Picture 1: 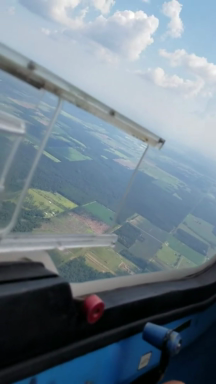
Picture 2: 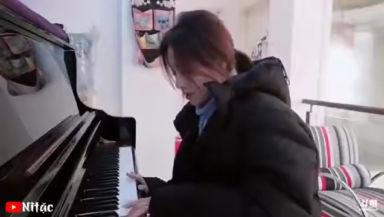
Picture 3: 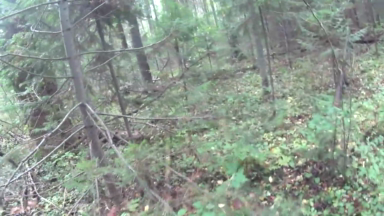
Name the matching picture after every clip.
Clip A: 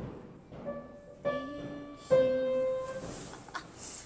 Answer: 2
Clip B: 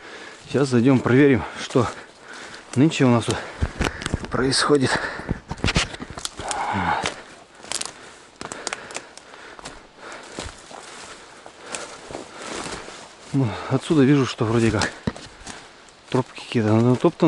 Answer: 3